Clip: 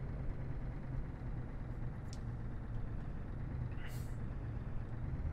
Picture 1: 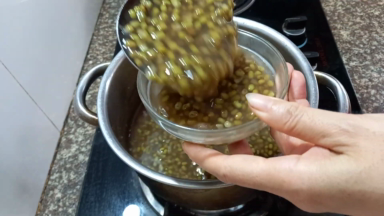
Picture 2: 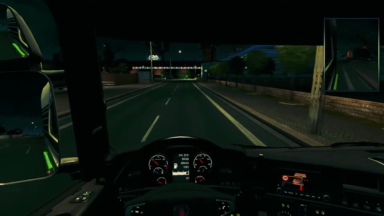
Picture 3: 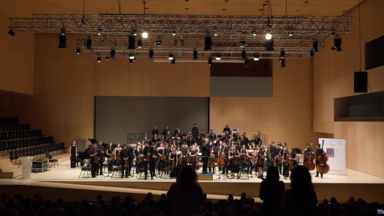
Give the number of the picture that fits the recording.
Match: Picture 2